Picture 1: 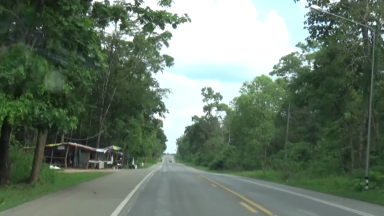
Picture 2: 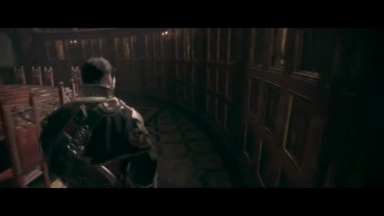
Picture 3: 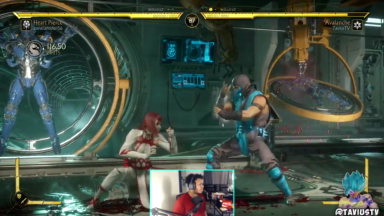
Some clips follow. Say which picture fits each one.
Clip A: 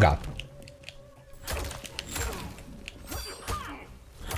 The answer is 3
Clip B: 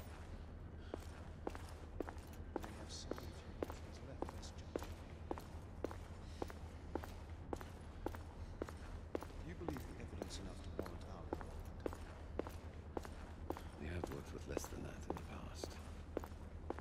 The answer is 2